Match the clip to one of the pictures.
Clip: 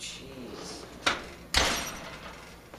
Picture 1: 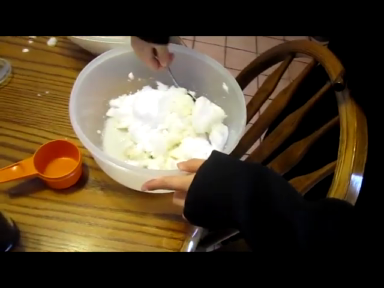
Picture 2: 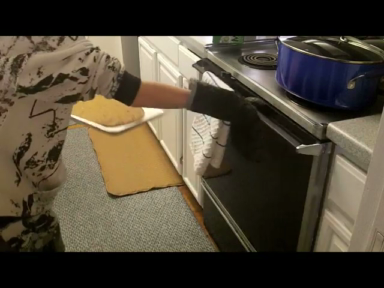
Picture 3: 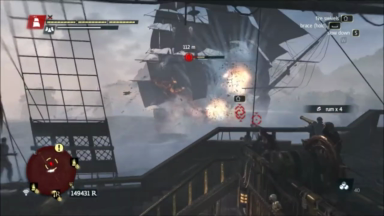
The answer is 2